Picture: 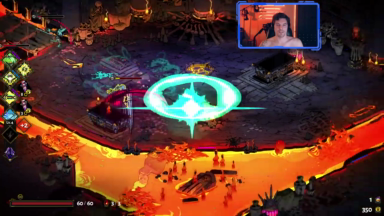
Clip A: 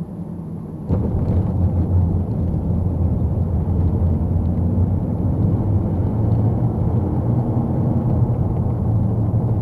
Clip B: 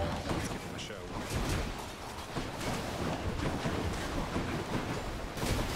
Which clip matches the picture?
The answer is B